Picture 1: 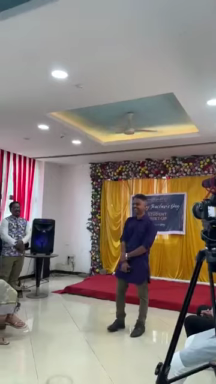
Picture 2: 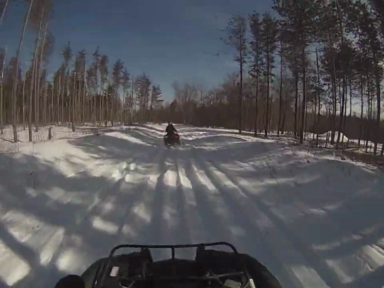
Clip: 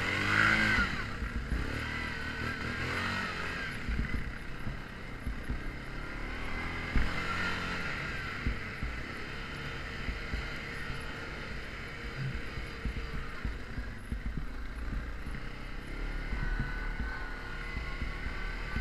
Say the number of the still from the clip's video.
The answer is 2